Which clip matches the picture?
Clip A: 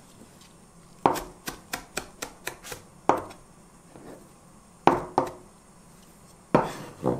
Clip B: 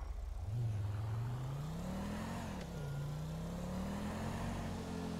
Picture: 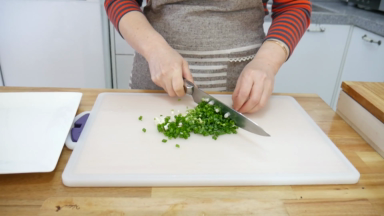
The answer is A